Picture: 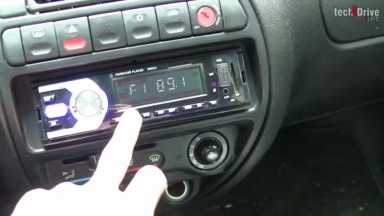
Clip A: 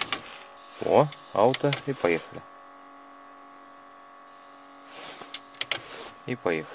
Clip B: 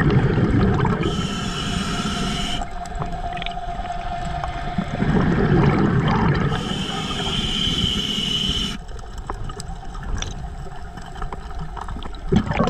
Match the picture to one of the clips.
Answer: A